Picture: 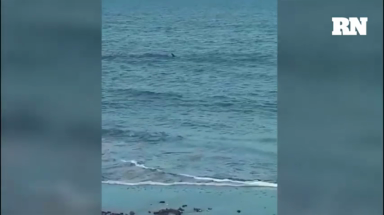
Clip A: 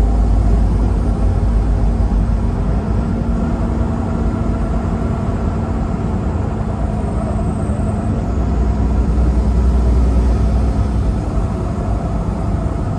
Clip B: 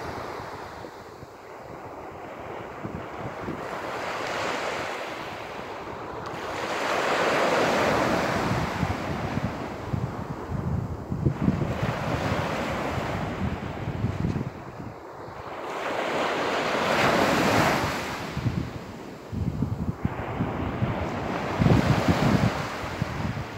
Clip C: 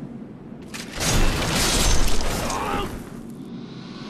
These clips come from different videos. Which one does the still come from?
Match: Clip B